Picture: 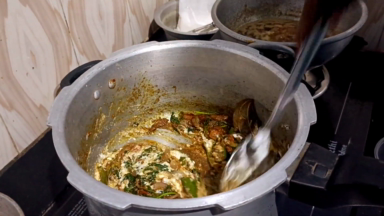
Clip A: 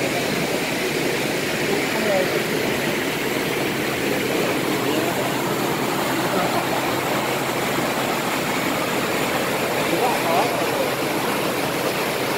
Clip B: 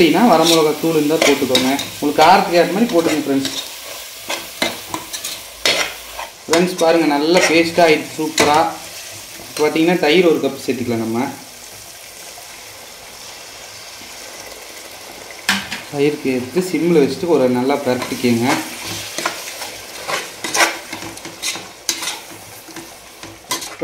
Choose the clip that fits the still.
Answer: B